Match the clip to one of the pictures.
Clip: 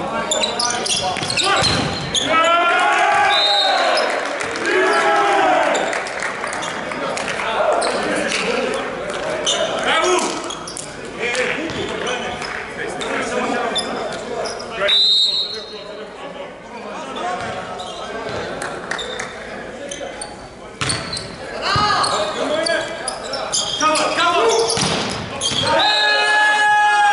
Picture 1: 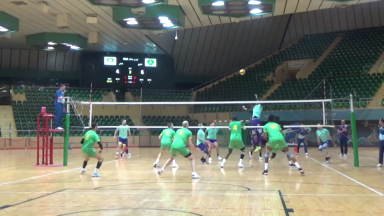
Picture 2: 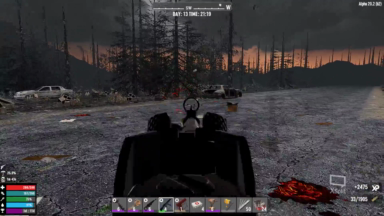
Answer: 1